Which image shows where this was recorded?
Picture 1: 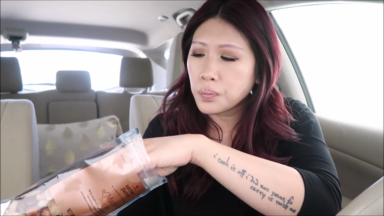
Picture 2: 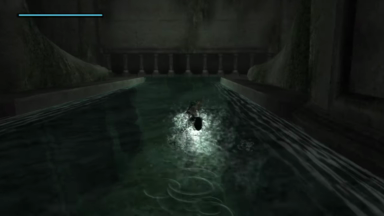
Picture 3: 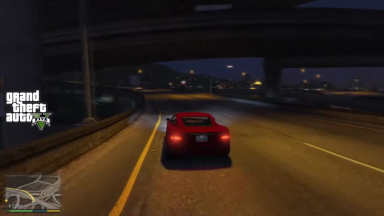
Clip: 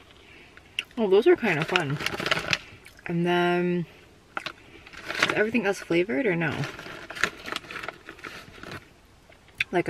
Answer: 1